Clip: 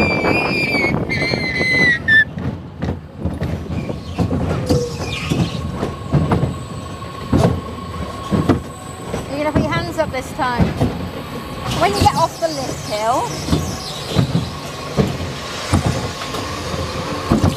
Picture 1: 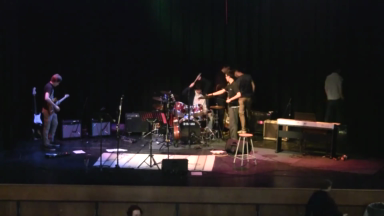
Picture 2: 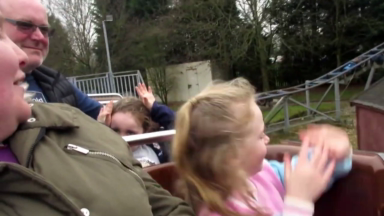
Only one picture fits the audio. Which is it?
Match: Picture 2